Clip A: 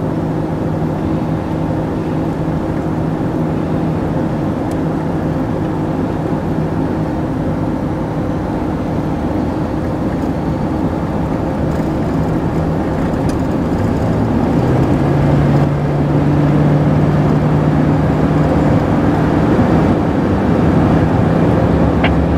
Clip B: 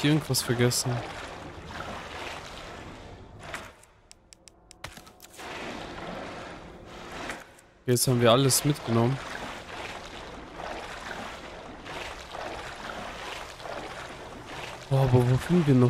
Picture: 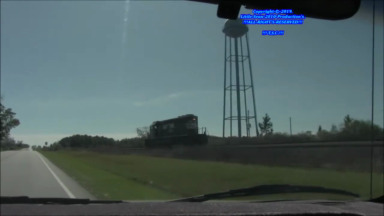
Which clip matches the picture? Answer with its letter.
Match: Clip A